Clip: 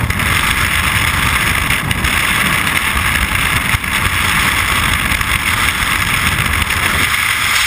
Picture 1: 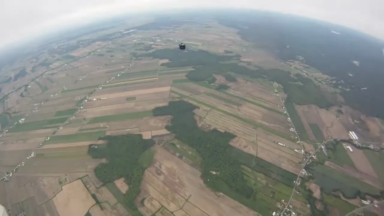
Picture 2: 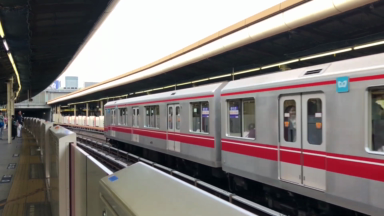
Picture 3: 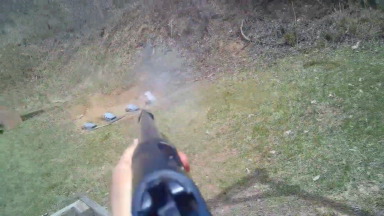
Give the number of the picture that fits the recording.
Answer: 1